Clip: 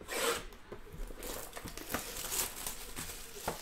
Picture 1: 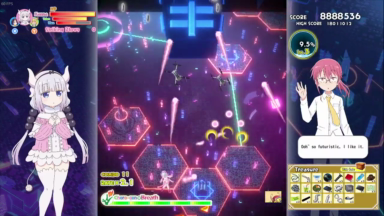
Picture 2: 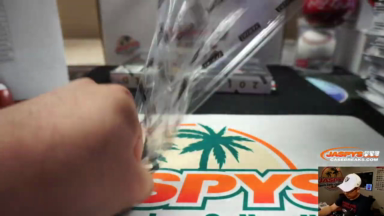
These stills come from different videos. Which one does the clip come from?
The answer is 2